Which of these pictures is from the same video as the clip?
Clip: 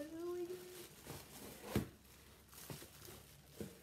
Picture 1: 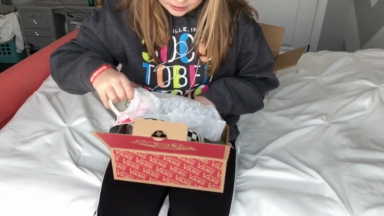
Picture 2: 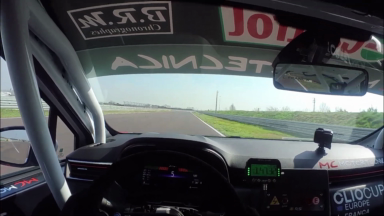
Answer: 1